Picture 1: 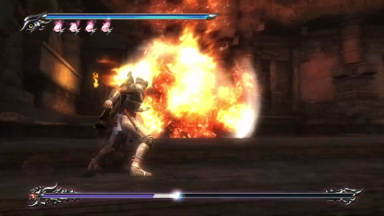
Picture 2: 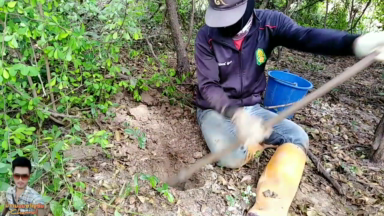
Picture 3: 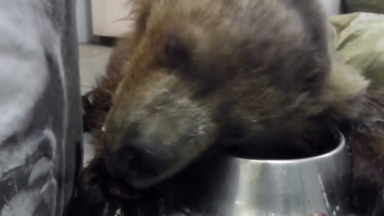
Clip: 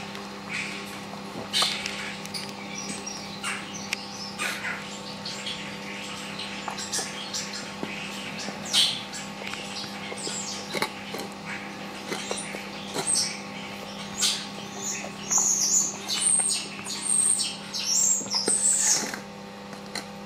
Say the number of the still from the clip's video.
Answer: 3